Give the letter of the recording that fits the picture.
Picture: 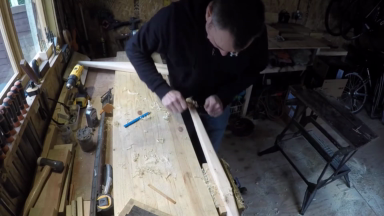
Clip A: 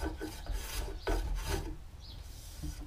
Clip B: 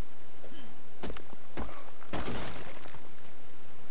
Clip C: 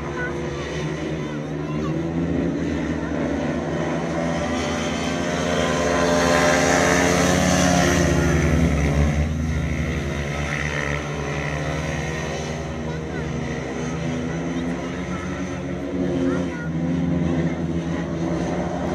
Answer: A